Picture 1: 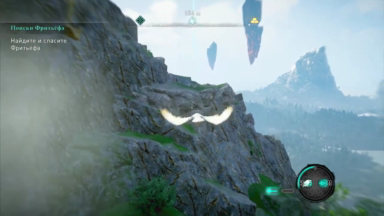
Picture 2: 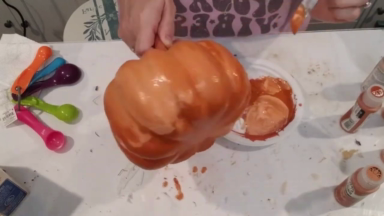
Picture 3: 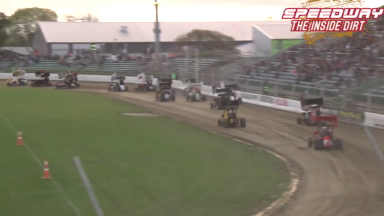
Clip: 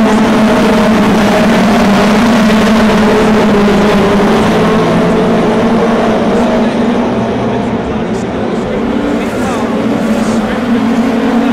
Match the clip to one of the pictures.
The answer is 3